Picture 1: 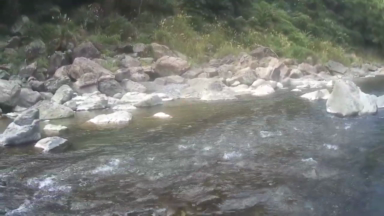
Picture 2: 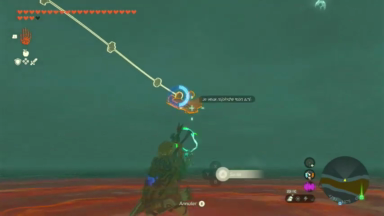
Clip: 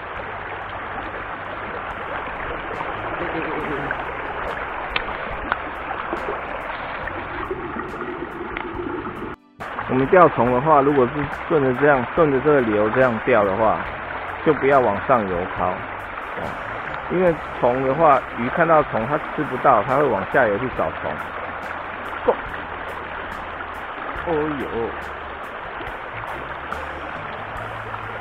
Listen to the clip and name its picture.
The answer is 1